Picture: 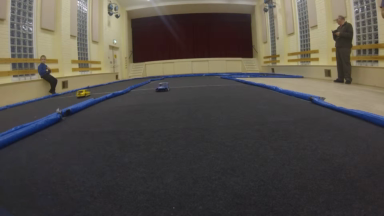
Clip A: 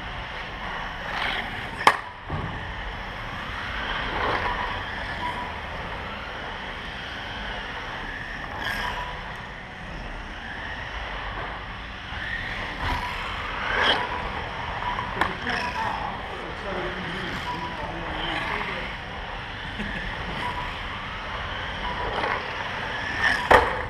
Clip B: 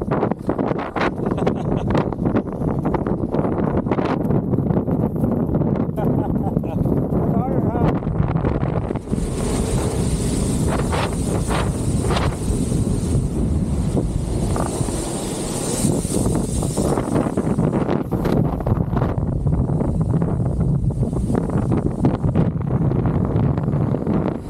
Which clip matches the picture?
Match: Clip A